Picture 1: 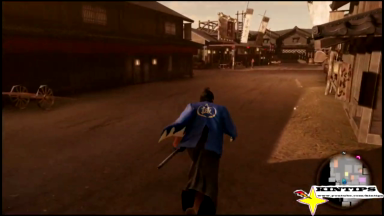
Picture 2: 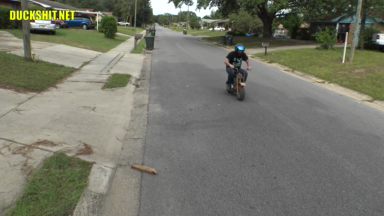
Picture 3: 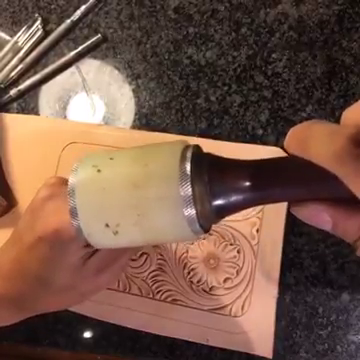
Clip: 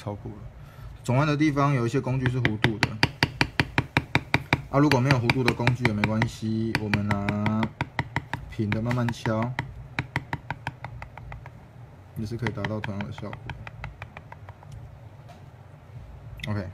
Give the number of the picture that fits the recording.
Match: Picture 3